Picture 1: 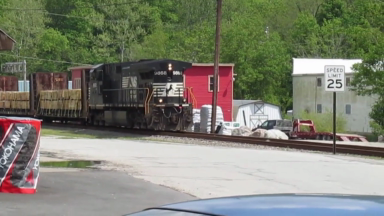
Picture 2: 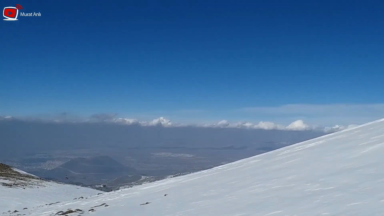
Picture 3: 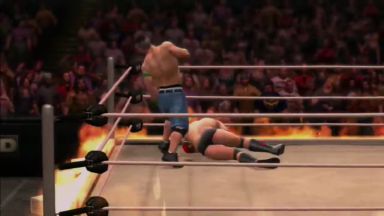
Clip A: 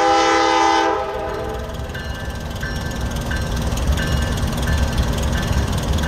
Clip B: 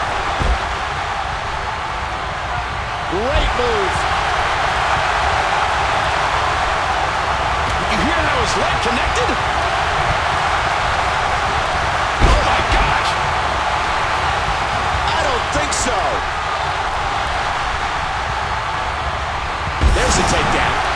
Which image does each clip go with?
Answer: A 1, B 3